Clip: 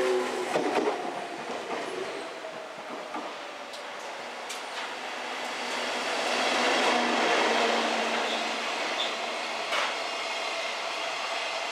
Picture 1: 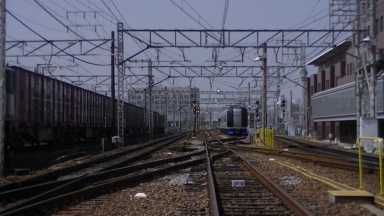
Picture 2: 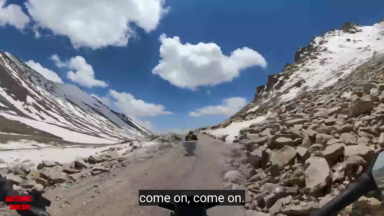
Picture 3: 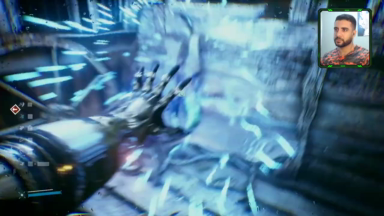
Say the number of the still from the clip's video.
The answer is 1